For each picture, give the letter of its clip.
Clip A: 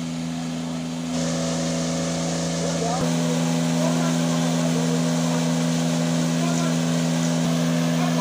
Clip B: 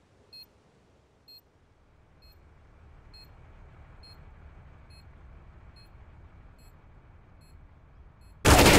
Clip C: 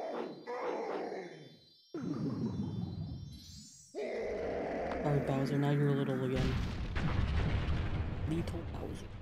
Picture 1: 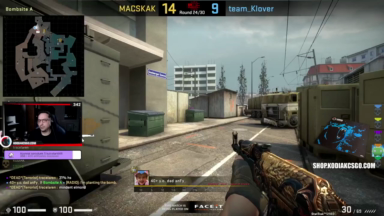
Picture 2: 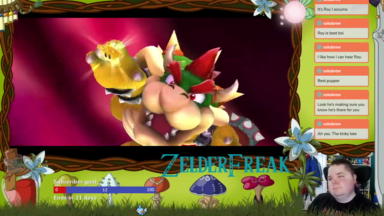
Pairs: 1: B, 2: C